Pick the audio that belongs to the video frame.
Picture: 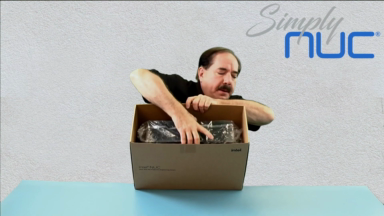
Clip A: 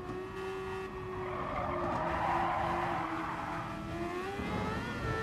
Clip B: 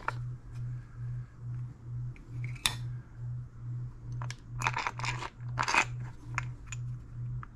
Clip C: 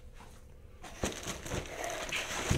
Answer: C